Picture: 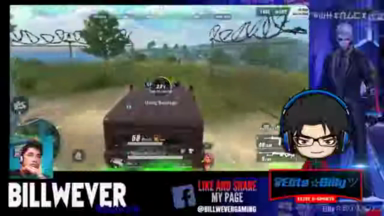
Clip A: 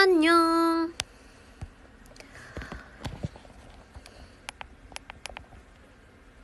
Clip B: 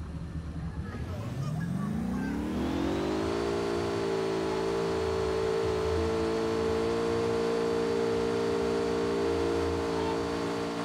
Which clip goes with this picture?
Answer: B